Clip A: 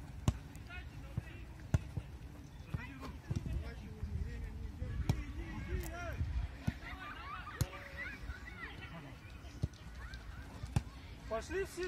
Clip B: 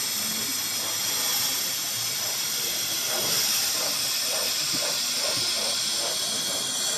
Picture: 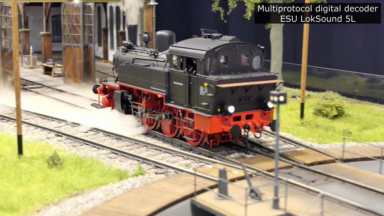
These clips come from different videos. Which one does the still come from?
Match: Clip B